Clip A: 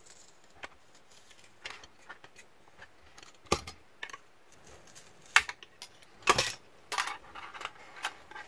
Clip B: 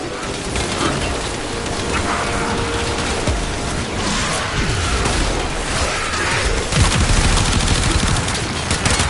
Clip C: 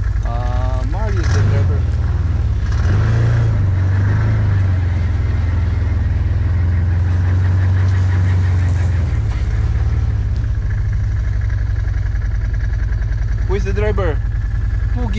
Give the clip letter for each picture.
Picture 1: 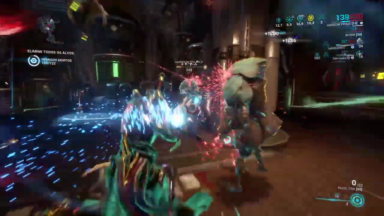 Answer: B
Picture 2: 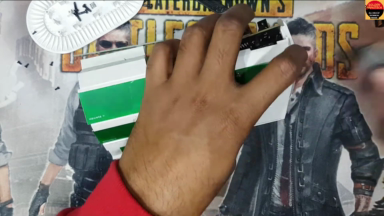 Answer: A